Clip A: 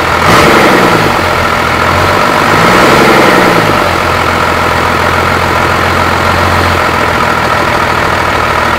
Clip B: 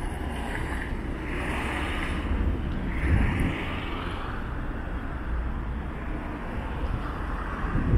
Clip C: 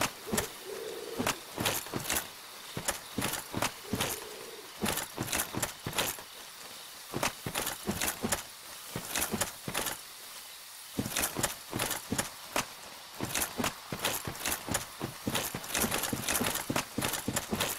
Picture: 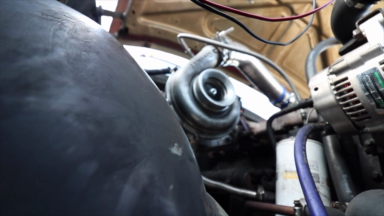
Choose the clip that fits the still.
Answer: A